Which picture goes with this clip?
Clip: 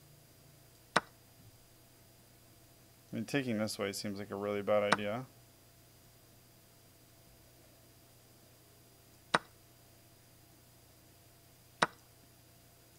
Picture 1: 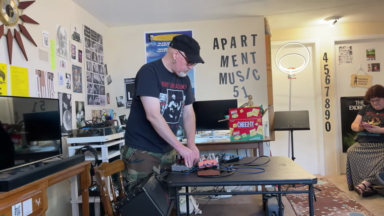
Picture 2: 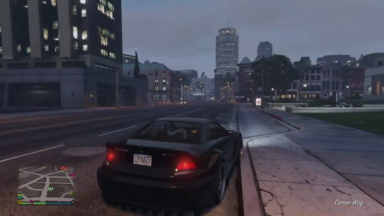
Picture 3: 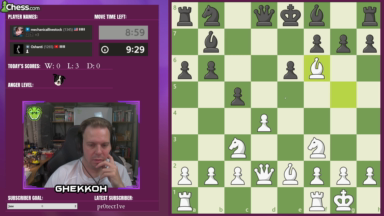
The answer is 3